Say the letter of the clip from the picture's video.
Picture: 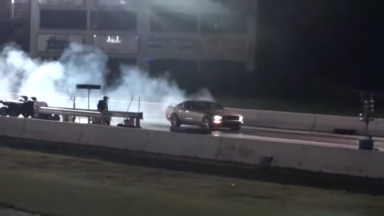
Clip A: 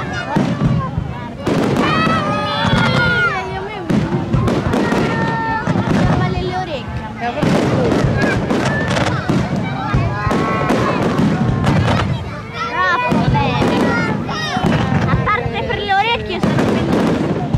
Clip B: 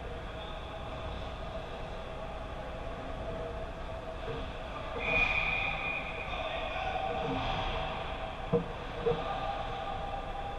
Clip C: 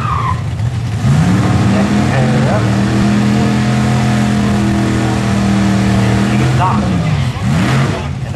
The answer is C